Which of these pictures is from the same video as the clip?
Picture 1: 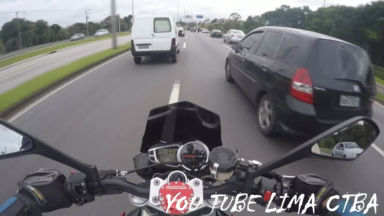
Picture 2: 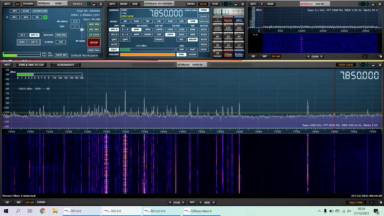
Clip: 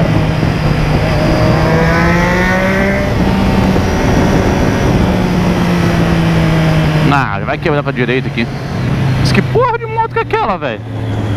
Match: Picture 1